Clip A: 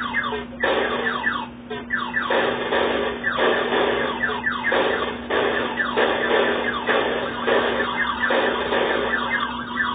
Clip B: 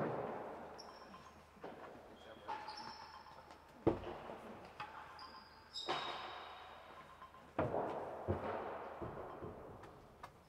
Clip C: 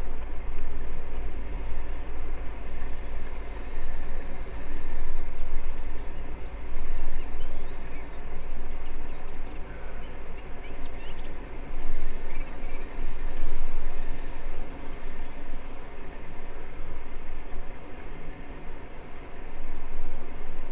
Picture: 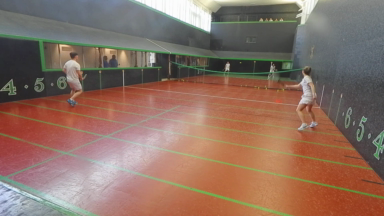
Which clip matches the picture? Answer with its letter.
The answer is B